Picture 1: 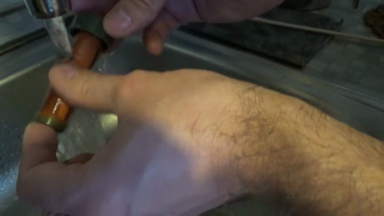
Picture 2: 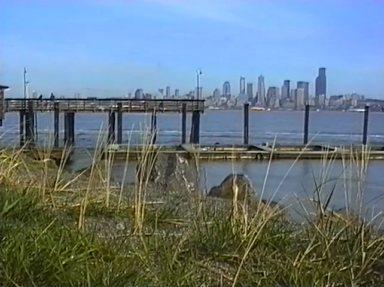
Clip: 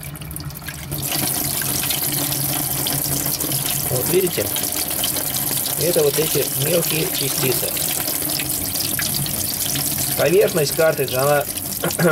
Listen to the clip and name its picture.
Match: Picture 1